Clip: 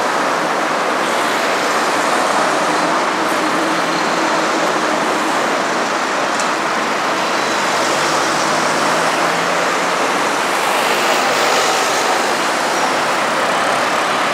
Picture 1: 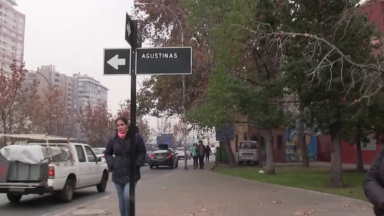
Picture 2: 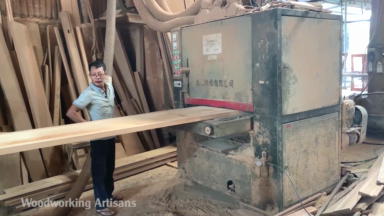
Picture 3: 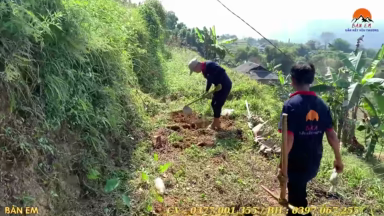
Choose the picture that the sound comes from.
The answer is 1